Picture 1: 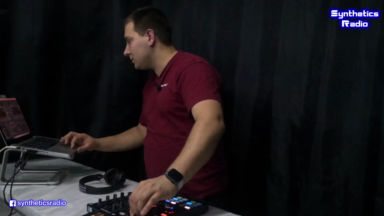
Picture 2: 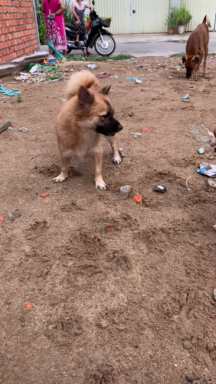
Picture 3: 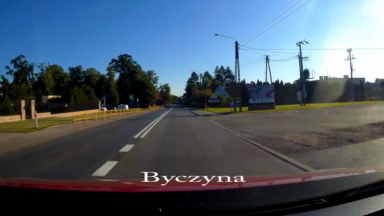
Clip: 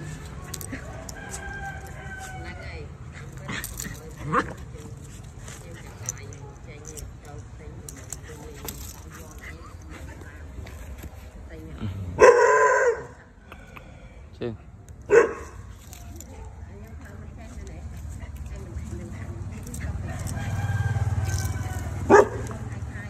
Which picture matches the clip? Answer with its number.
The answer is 2